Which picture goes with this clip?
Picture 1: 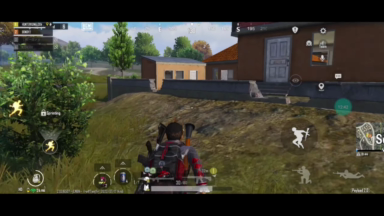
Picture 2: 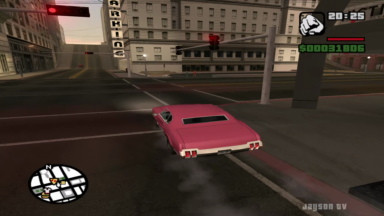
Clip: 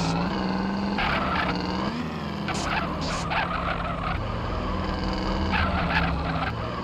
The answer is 2